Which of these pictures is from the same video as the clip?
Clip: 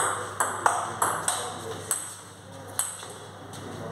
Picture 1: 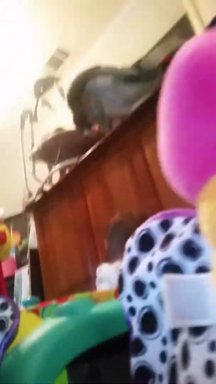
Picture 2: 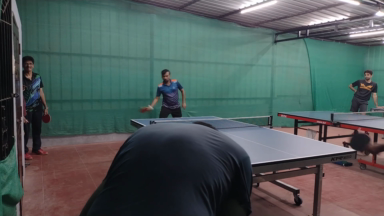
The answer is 2